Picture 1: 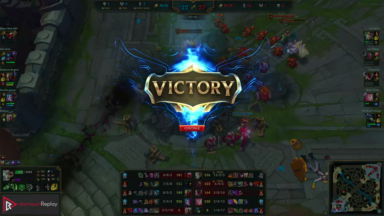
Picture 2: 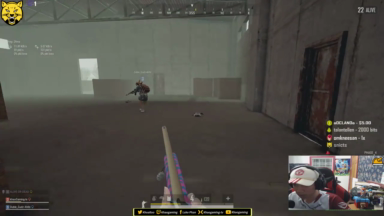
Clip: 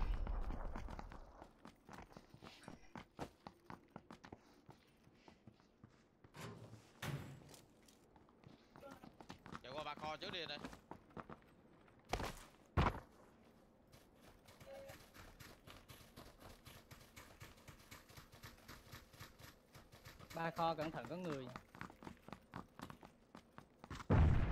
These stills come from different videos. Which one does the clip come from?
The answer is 2